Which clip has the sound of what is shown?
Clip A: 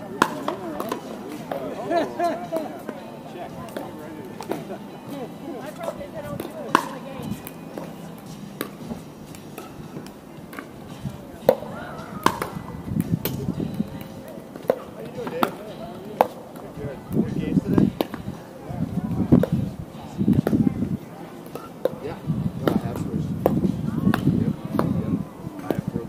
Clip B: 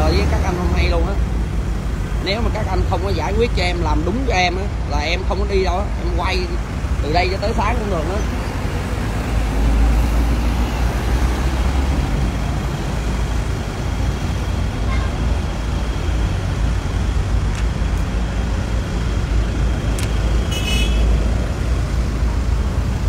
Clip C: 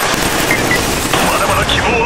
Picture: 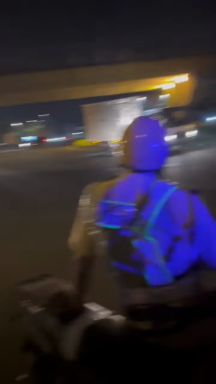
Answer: B